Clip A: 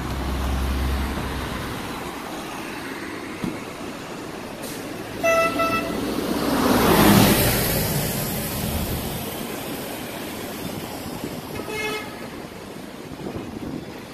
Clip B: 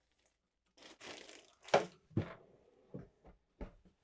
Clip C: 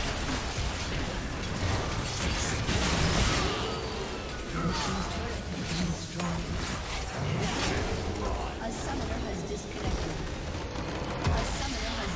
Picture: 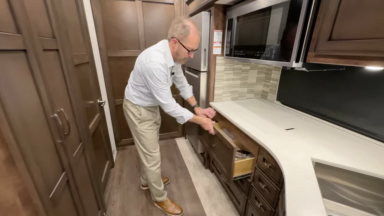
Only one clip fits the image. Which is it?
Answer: B